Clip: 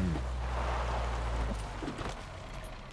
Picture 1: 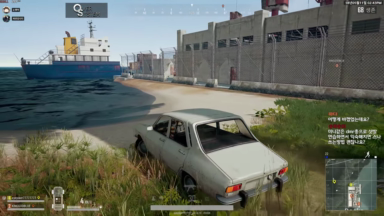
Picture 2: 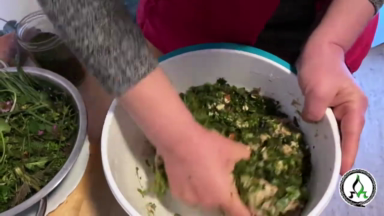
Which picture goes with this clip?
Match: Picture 1